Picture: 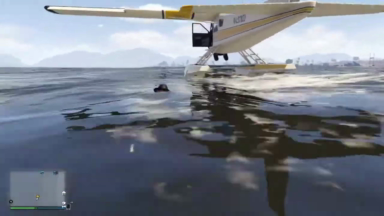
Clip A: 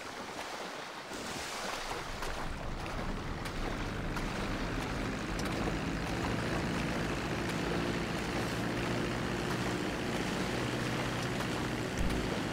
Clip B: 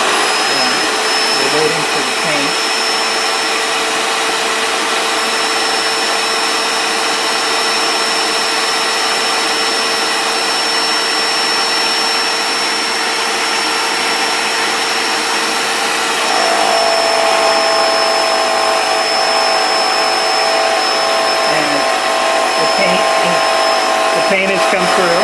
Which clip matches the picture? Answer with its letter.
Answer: A